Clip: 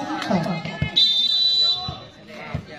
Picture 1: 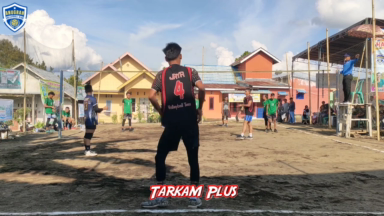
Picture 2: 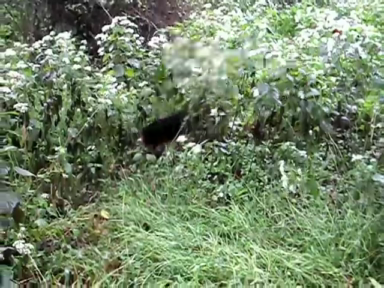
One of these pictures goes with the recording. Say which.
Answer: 1